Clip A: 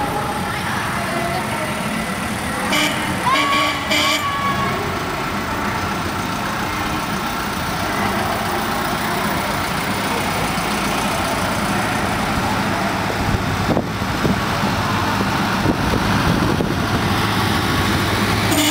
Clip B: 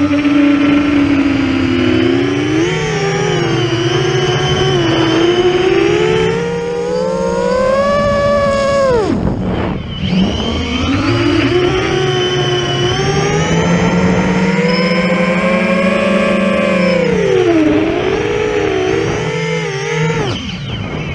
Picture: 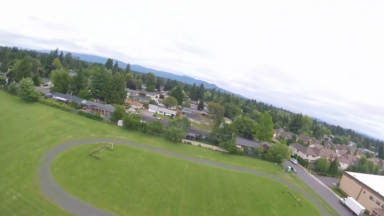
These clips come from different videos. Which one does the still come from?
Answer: B